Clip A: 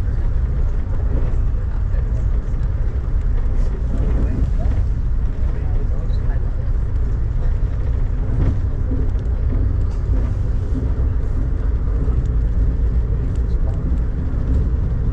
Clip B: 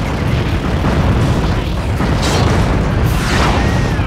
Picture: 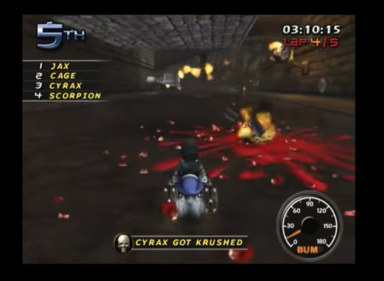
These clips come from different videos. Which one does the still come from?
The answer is B